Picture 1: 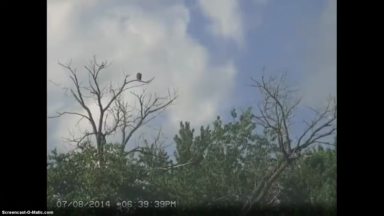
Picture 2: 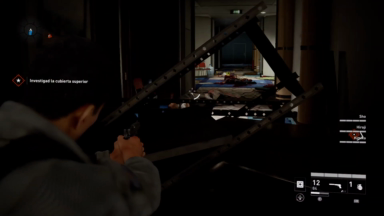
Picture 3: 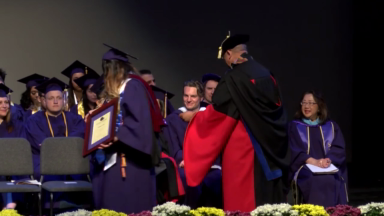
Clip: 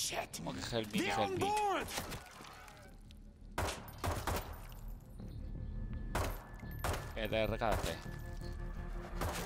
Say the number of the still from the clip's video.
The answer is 2